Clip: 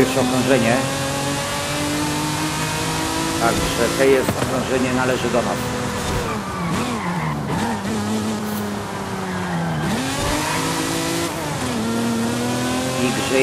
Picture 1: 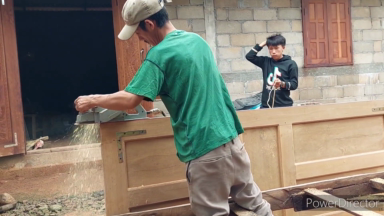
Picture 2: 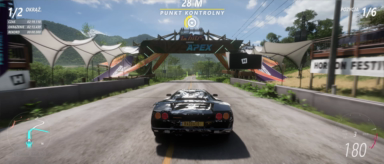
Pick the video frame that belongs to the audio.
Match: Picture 2